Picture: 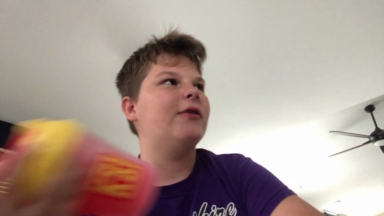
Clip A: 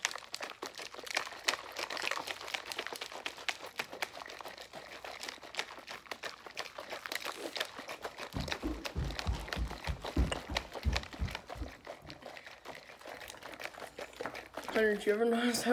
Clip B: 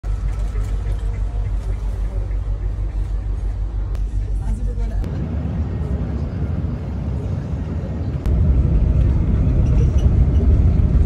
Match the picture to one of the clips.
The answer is A